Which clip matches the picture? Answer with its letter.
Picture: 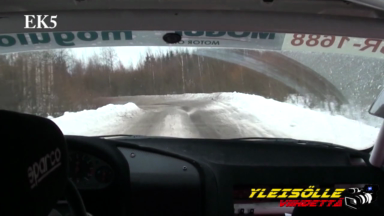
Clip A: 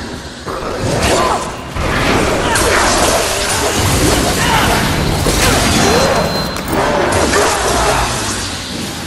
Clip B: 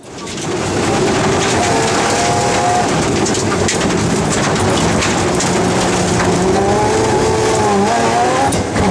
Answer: B